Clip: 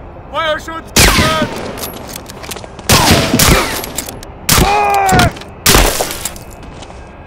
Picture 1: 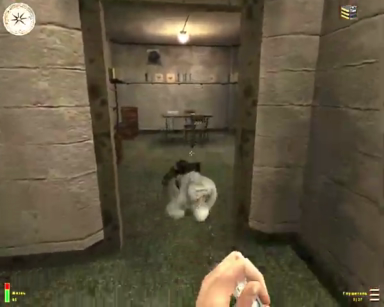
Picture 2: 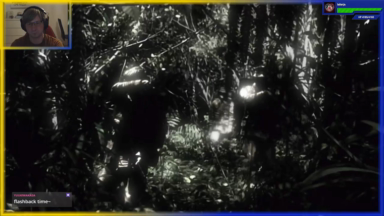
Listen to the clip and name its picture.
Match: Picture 1